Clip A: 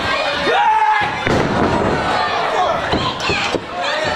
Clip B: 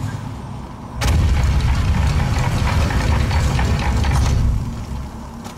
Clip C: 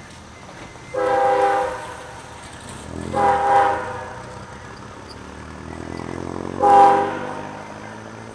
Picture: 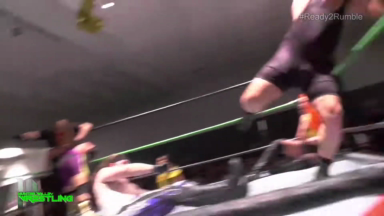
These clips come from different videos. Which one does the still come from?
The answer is A